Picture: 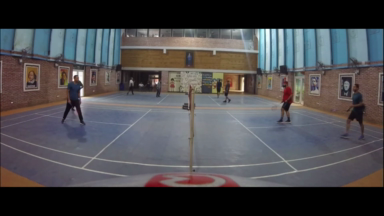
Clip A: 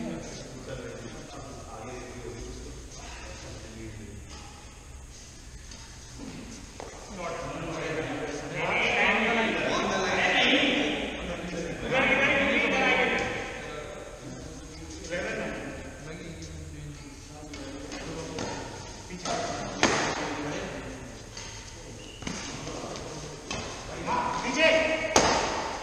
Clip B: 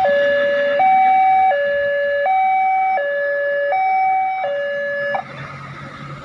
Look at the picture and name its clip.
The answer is A